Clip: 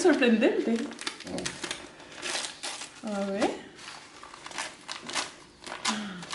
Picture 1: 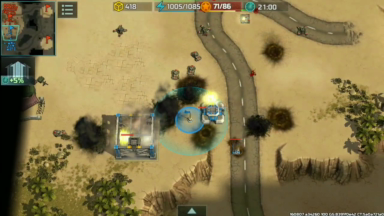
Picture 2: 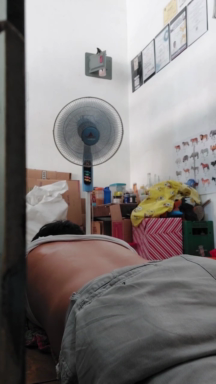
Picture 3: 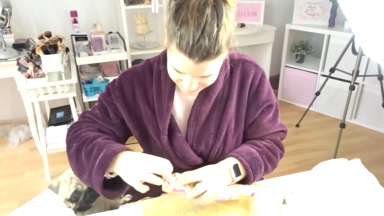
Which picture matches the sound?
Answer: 3